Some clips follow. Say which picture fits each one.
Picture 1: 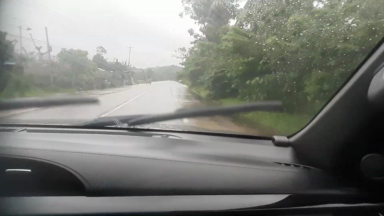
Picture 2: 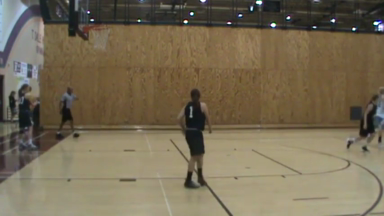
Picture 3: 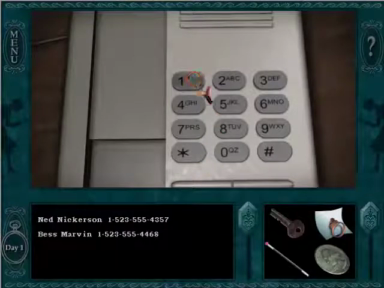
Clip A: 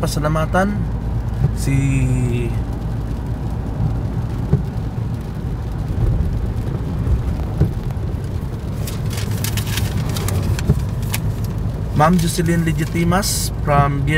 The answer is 1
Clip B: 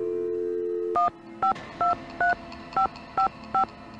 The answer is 3